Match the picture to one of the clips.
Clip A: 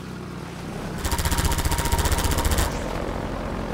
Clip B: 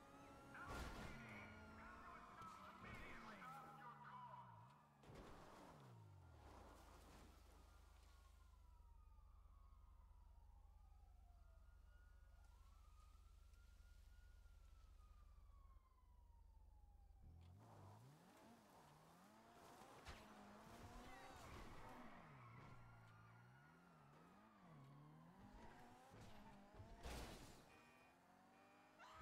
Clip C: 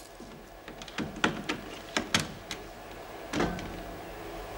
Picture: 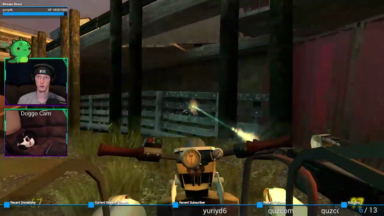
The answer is A